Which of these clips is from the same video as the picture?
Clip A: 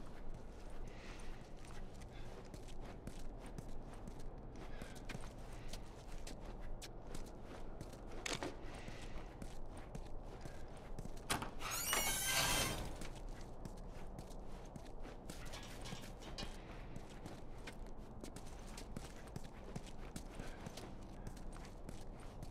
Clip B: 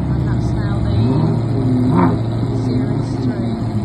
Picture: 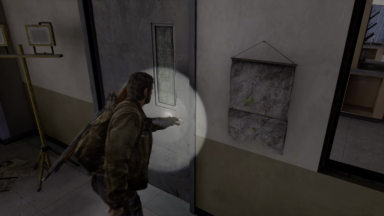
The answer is A